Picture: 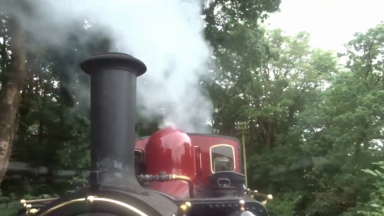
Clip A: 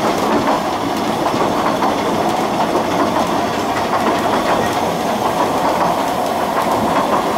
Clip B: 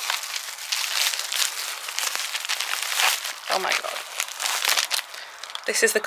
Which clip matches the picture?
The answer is A